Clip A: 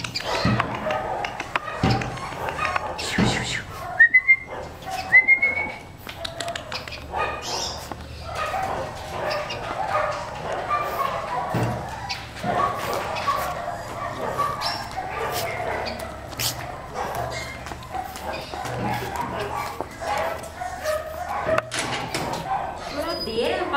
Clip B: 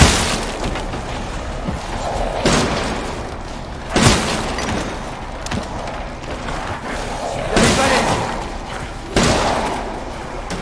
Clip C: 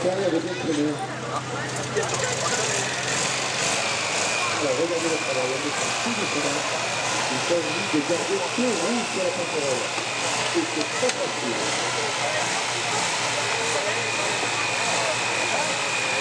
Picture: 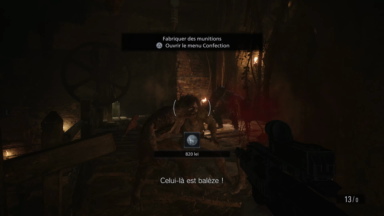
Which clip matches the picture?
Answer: B